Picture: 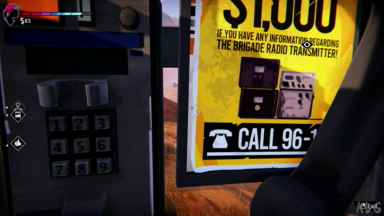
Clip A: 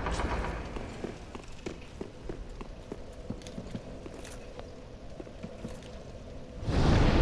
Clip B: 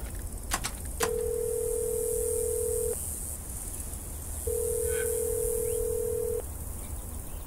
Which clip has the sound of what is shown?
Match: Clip B